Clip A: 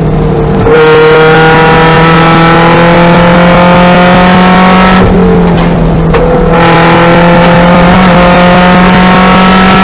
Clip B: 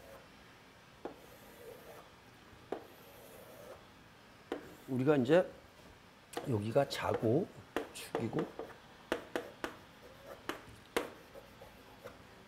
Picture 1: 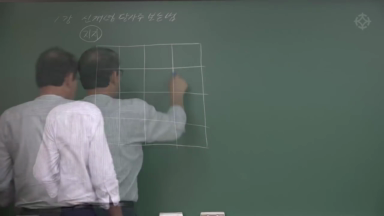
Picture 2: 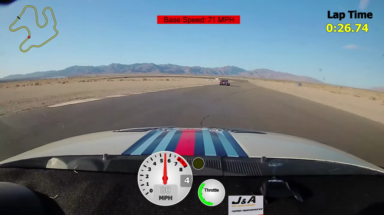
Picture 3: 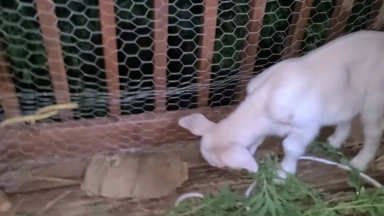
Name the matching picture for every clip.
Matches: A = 2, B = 1